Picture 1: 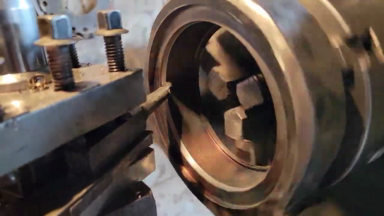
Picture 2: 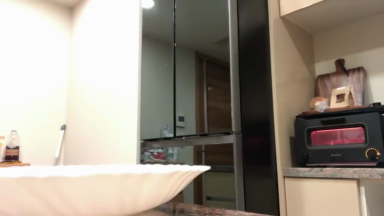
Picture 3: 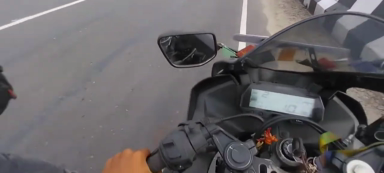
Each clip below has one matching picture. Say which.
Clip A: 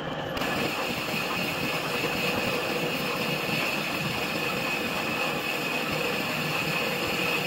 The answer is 1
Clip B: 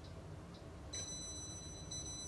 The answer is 2